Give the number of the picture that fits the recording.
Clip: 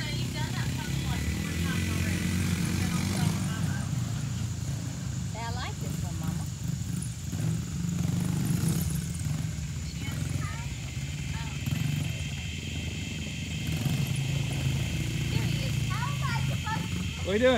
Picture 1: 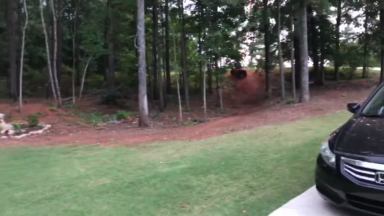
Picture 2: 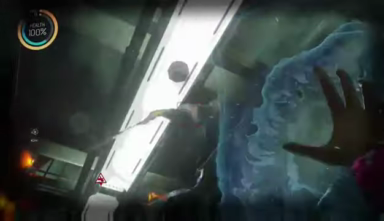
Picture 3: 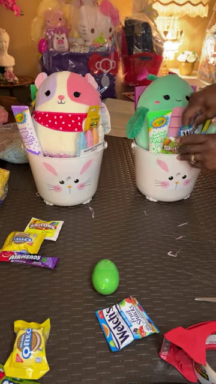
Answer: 1